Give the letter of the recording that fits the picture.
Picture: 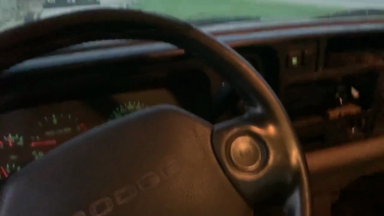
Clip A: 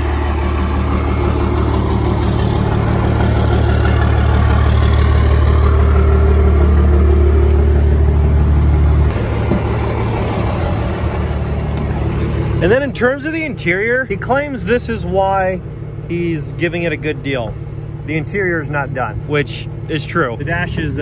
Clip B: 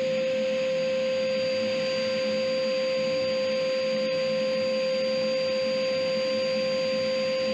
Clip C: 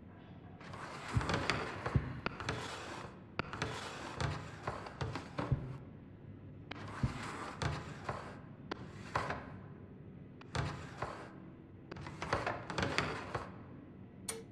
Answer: A